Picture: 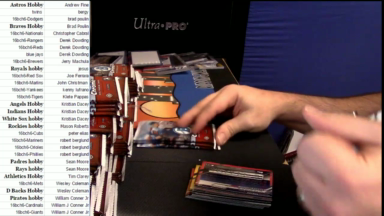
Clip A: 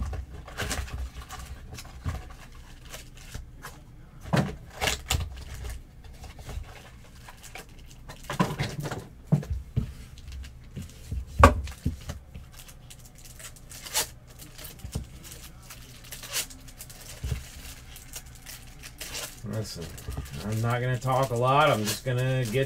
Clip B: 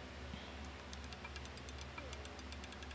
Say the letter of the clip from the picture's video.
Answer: A